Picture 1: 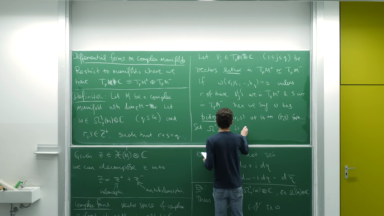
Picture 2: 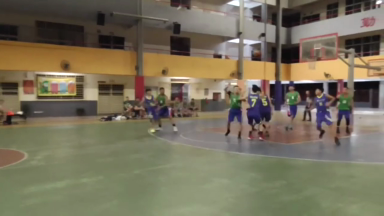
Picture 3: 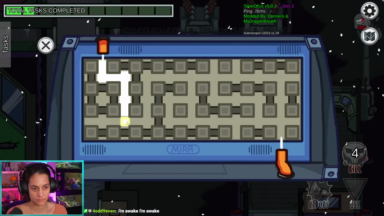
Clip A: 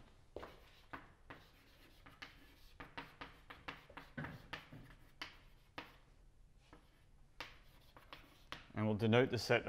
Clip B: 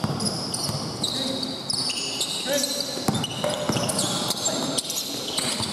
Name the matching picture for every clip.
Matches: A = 1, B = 2